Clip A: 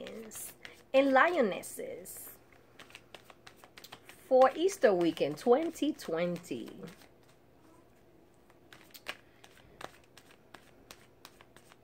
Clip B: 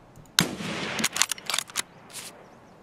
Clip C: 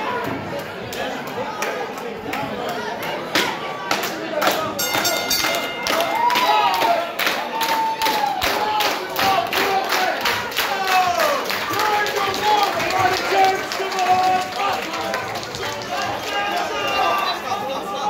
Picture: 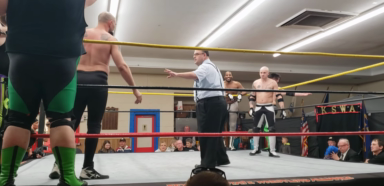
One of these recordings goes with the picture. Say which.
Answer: C